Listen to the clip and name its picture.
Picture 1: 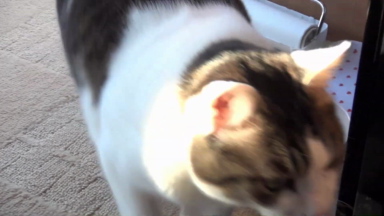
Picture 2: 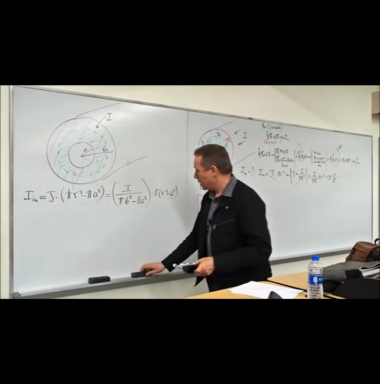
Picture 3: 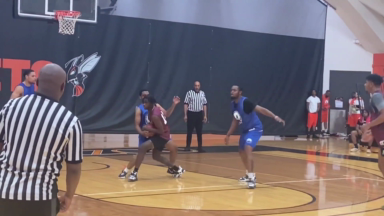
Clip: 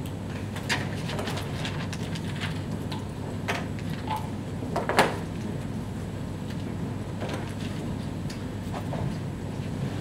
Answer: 2